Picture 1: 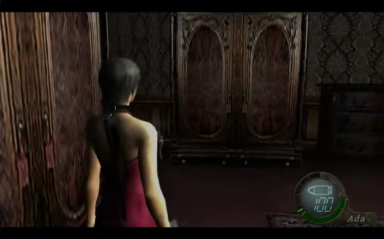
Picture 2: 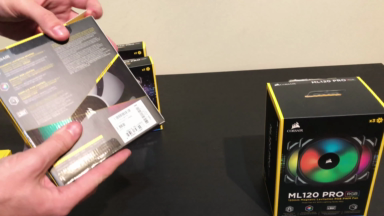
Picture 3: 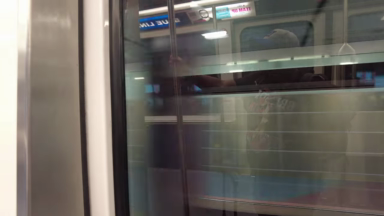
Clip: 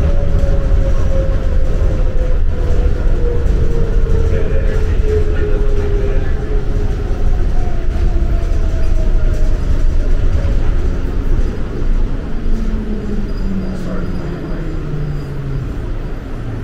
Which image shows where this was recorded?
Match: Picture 3